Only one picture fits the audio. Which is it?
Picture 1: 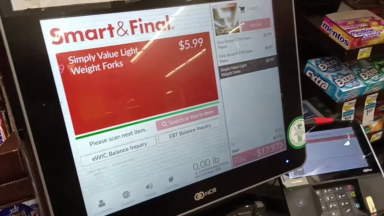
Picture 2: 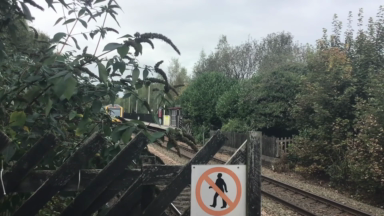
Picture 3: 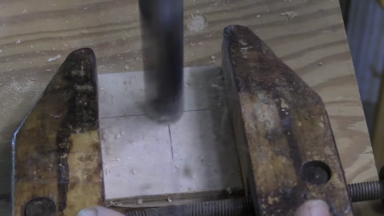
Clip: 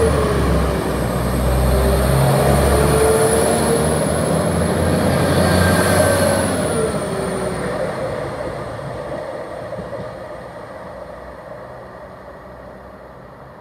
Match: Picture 2